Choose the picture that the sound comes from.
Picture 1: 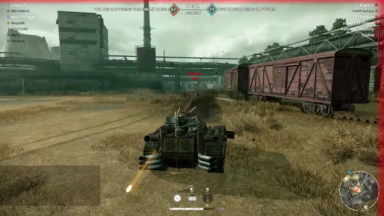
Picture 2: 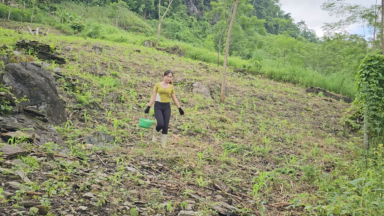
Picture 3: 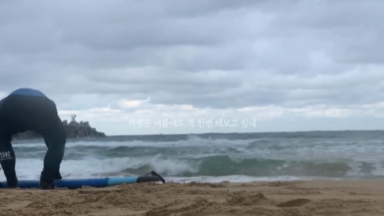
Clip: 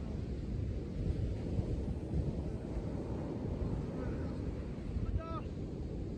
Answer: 3